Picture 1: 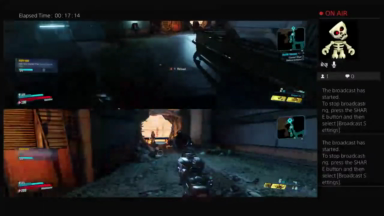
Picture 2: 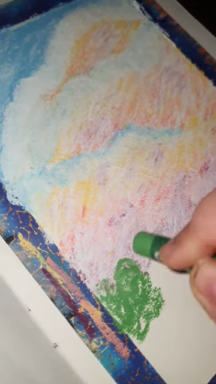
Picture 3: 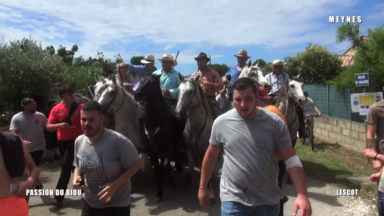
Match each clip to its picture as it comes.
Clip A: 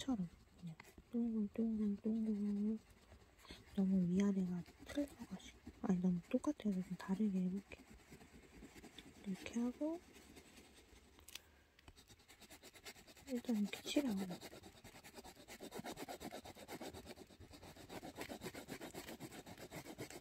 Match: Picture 2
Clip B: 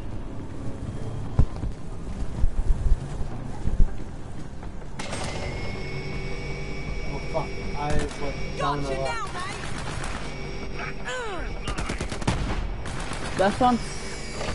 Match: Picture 1